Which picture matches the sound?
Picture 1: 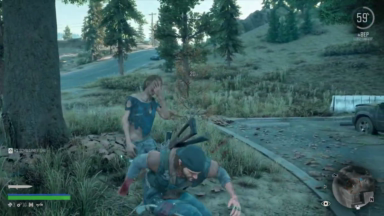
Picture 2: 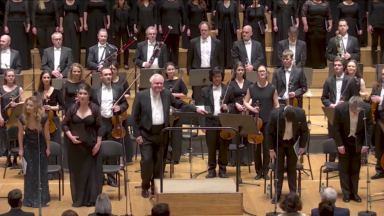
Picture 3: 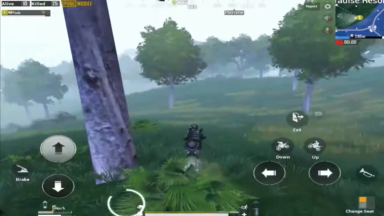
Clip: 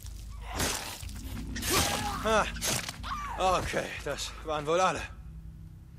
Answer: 1